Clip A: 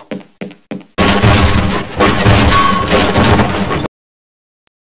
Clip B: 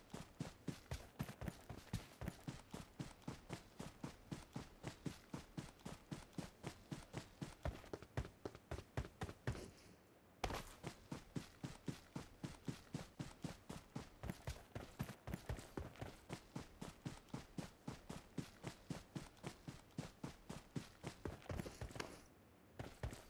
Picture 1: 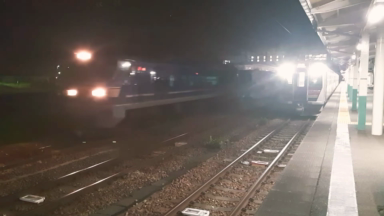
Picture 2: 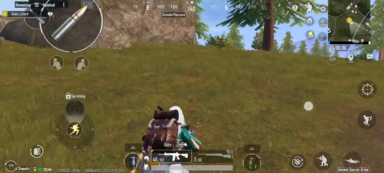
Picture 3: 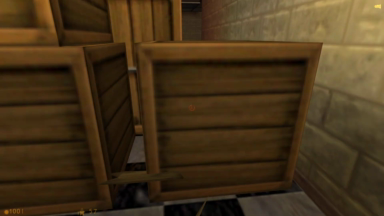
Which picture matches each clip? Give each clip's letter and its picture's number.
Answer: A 3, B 2